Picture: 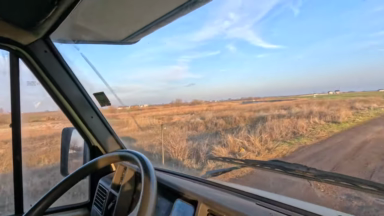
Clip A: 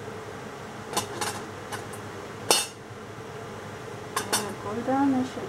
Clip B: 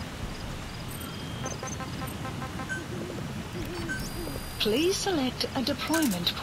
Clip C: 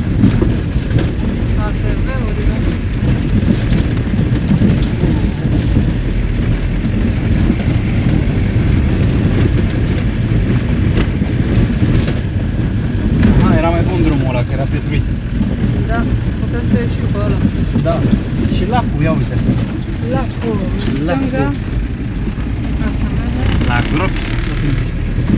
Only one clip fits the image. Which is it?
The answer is C